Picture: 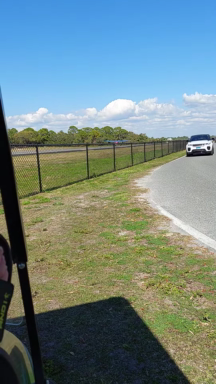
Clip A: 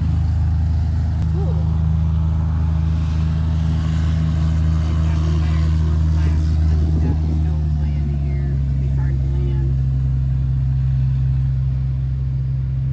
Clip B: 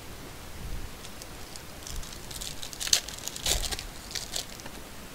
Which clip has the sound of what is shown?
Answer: A